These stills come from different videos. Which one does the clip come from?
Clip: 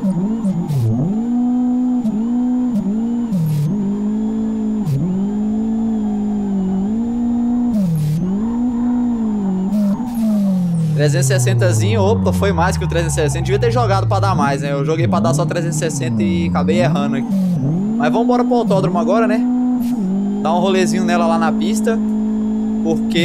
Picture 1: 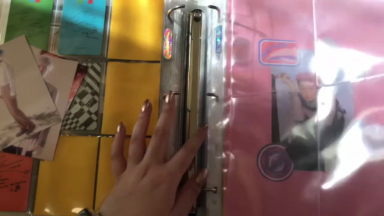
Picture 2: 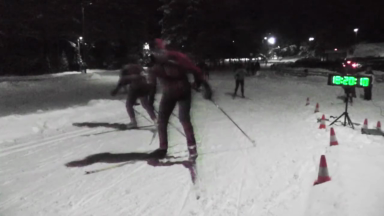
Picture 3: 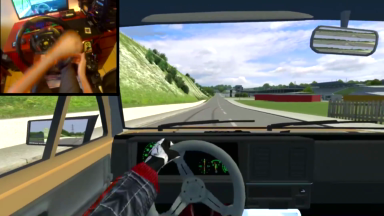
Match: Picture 3